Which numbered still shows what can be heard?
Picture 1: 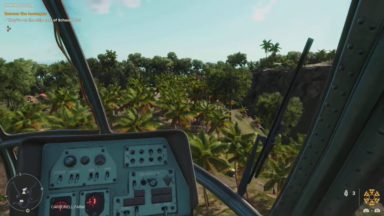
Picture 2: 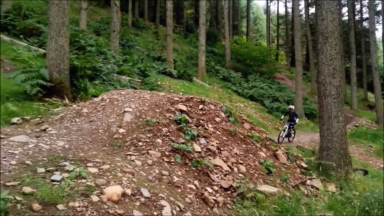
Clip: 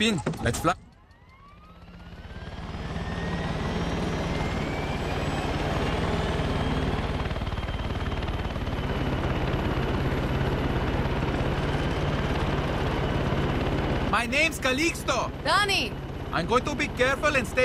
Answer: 1